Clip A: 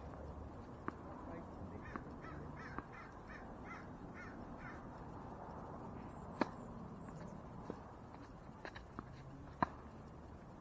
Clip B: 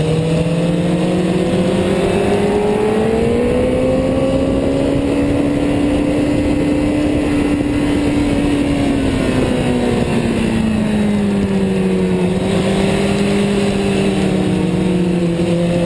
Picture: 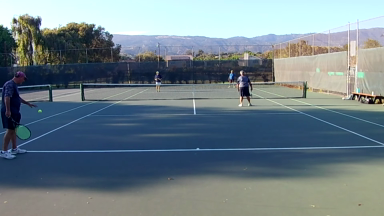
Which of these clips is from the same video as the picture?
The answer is A